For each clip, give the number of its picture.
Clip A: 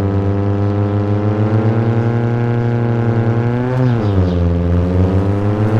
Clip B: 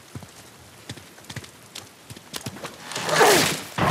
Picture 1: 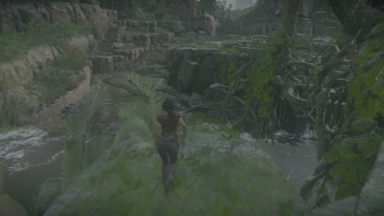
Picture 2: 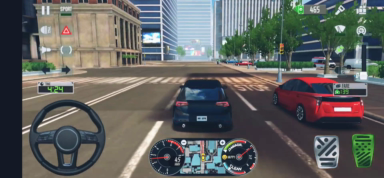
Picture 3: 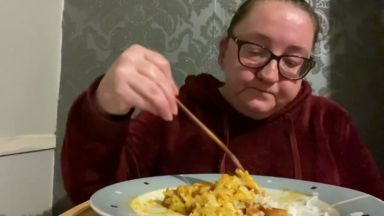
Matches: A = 2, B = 1